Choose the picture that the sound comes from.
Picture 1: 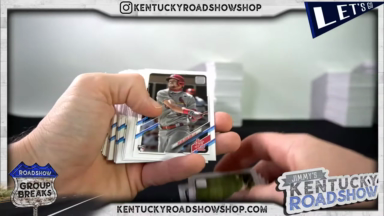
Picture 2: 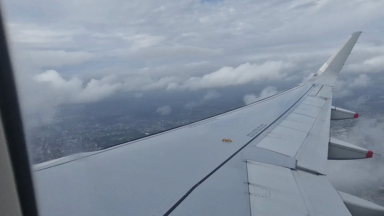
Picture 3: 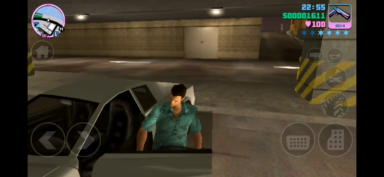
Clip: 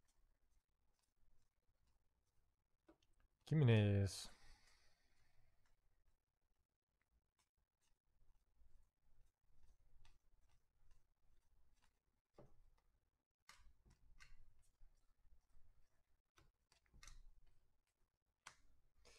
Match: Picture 1